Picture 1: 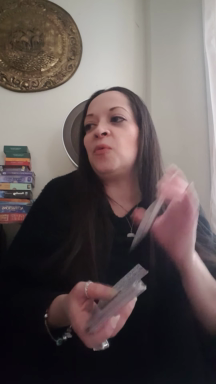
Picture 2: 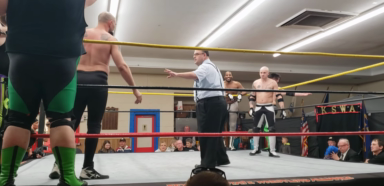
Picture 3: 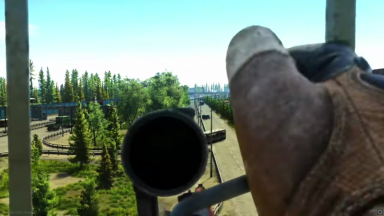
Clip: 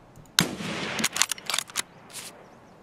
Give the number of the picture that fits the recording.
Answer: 3